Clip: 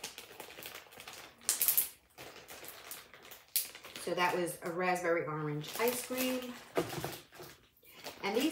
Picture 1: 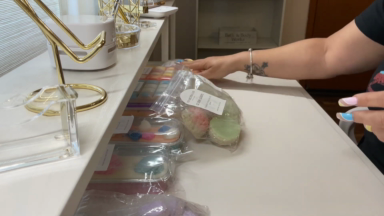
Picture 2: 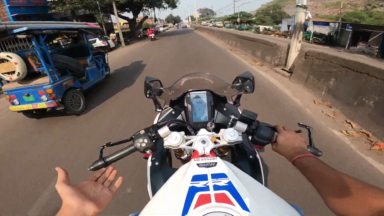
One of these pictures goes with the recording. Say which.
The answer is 1